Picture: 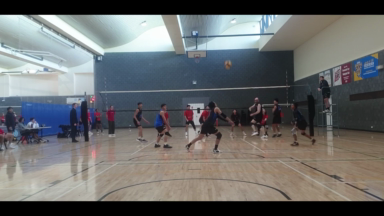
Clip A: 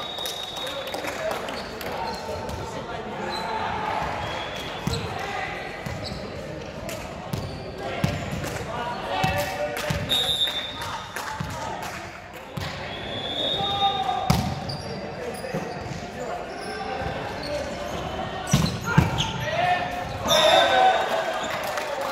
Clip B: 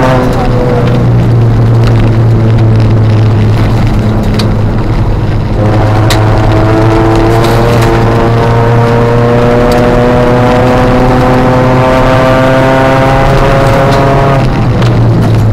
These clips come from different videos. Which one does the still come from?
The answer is A